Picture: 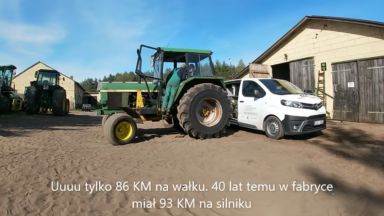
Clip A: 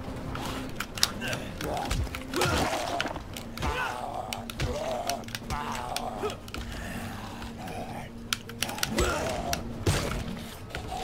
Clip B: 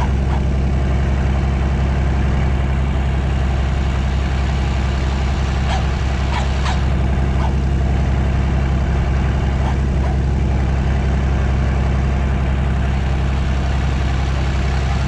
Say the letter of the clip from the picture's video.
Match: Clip B